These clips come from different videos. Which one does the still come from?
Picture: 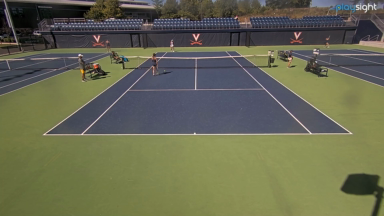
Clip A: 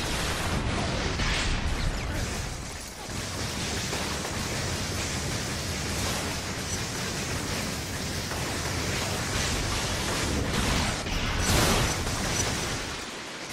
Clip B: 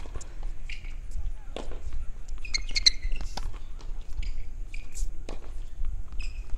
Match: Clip B